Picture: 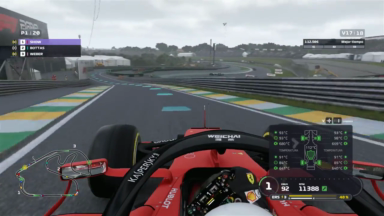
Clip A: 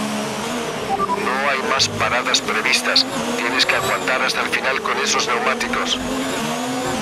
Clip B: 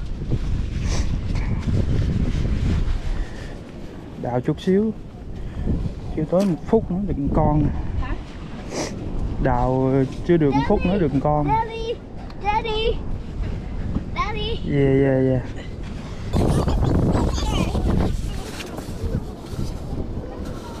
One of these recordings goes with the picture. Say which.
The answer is A